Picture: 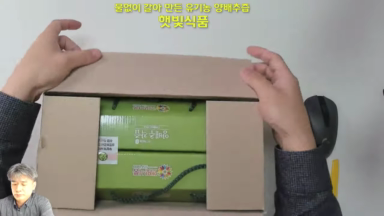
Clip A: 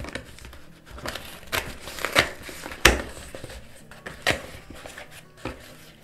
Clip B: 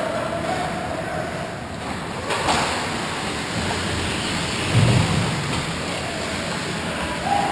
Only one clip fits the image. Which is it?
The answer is A